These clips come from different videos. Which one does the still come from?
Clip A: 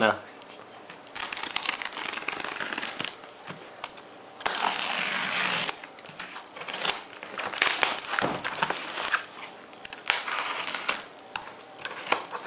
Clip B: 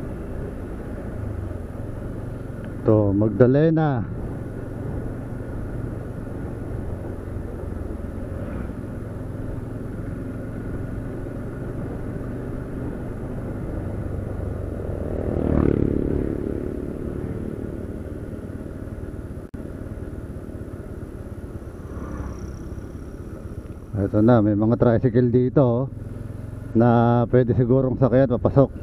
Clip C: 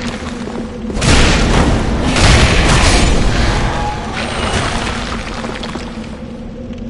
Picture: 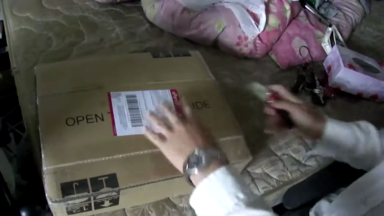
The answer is A